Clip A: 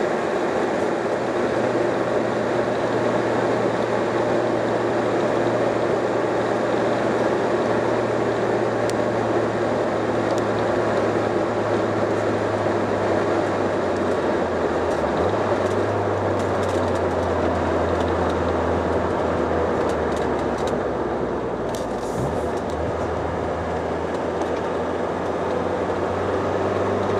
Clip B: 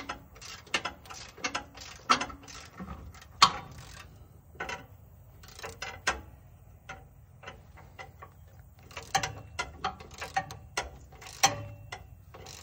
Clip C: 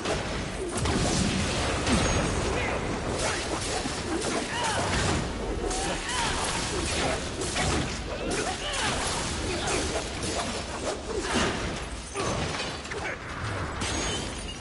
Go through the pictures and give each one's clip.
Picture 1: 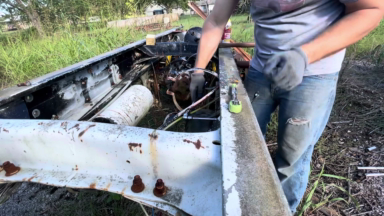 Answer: B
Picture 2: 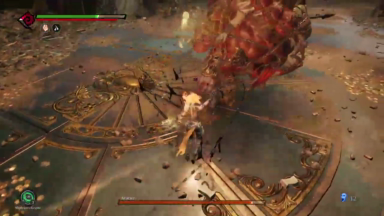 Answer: C